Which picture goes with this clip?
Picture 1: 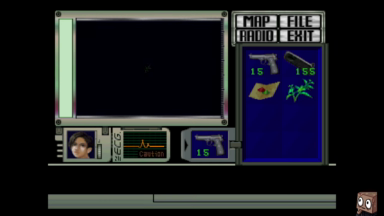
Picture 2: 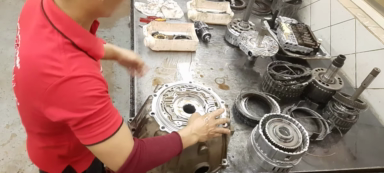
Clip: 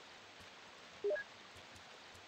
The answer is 1